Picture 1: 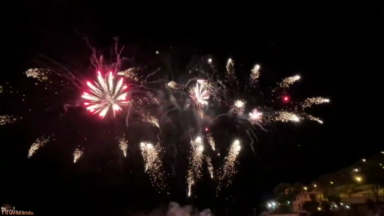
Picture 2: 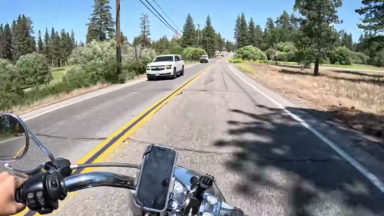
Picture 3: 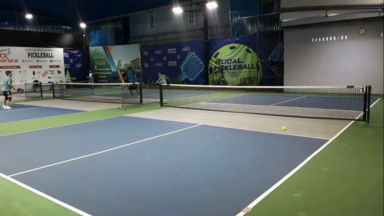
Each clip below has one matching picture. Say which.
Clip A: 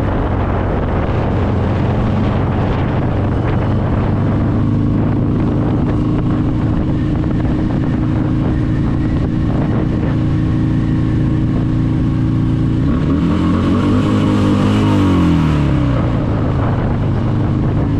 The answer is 2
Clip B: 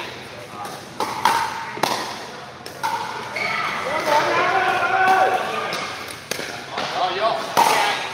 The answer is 3